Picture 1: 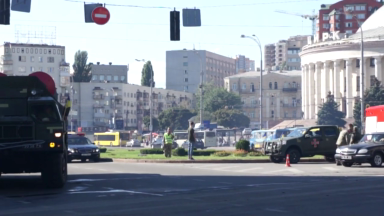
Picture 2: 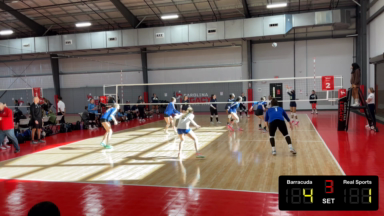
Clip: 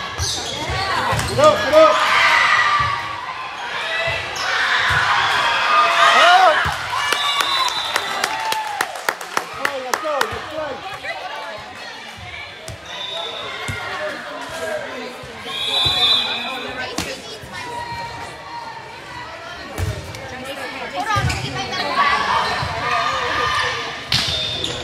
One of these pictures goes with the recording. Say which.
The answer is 2